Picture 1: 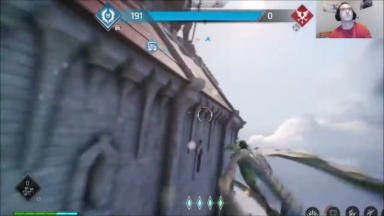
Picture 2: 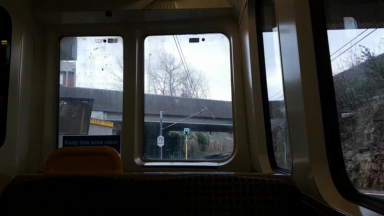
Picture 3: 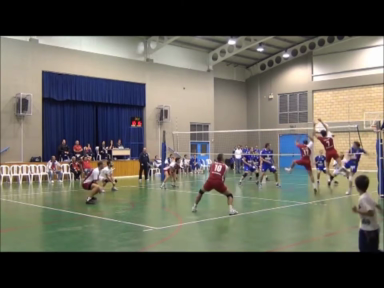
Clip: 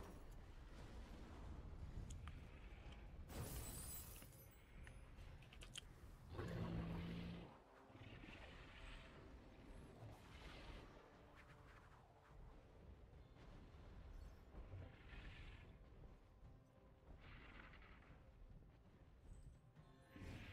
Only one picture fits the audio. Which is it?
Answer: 1